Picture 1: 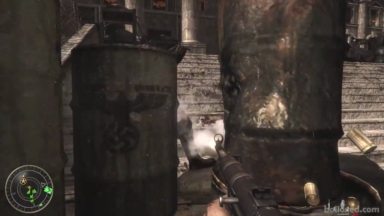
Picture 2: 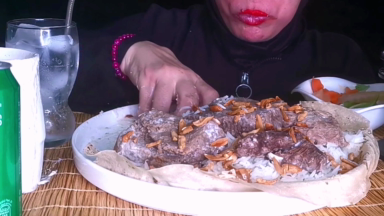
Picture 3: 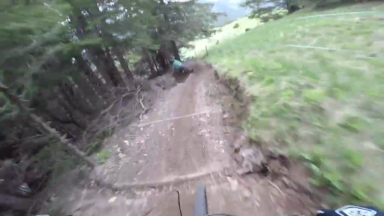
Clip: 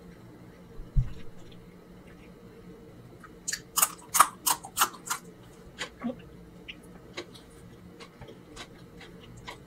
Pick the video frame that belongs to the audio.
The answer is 2